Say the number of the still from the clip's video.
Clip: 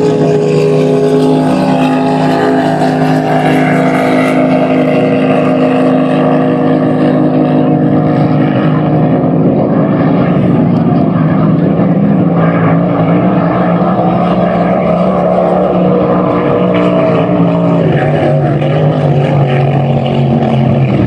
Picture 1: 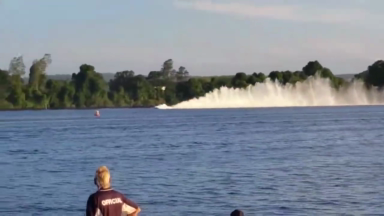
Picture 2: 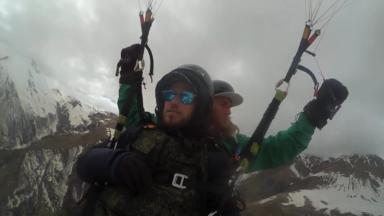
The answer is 1